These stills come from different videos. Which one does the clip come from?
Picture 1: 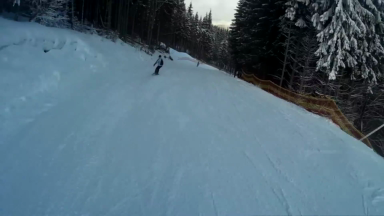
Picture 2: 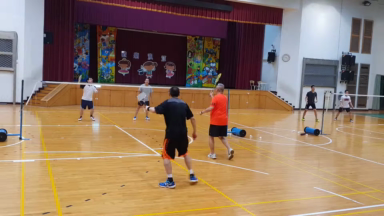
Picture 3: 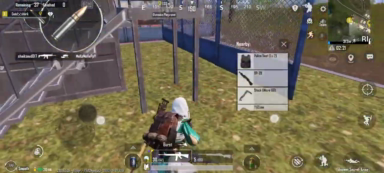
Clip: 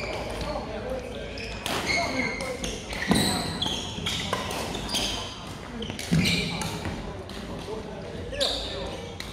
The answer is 2